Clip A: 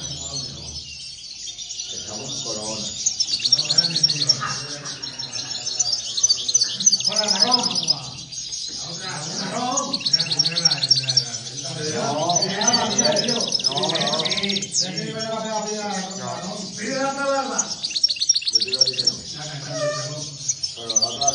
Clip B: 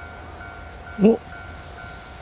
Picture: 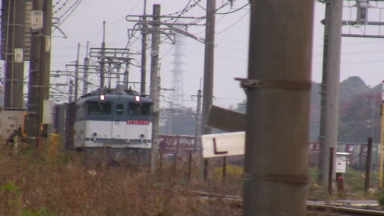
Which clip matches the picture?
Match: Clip B